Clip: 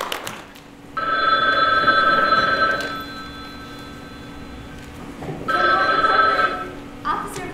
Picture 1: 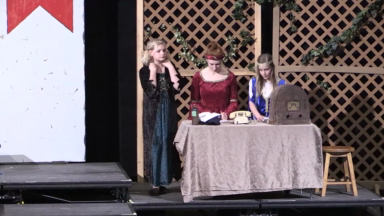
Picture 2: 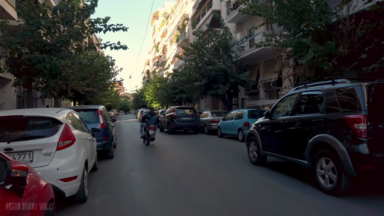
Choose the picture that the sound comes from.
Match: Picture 1